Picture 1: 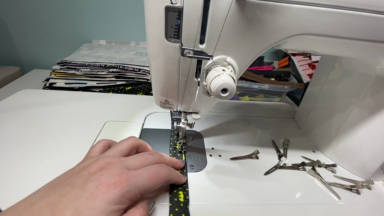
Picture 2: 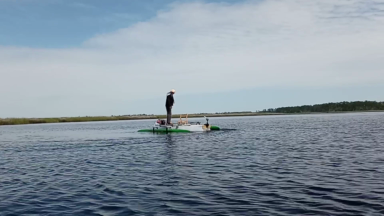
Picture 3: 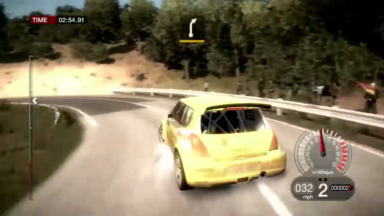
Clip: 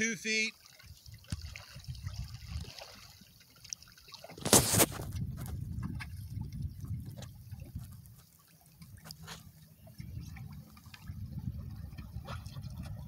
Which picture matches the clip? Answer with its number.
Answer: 2